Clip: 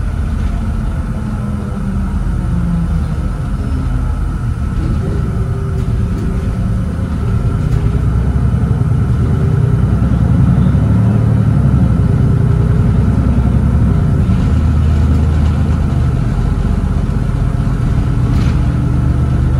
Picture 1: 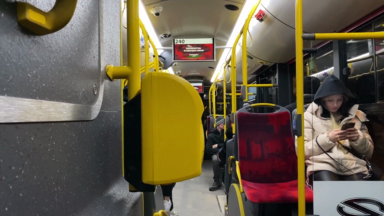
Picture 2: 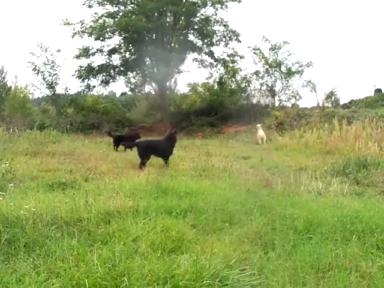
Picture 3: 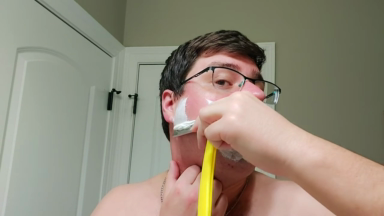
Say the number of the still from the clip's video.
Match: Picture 1